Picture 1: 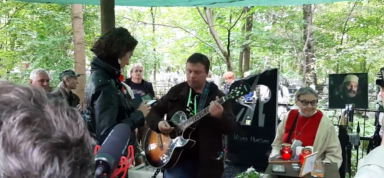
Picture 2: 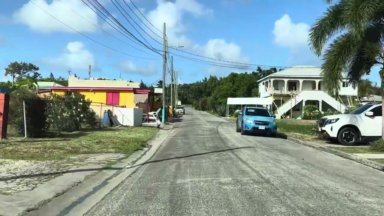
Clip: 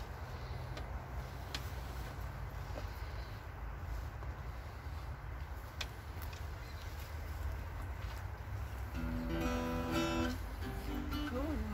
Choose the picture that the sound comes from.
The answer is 1